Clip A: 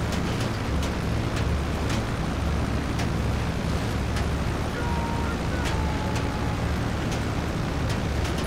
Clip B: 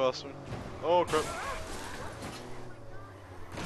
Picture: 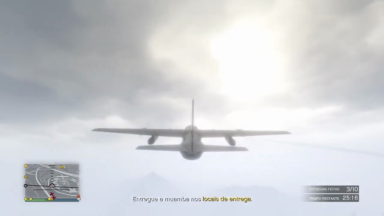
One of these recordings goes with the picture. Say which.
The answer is A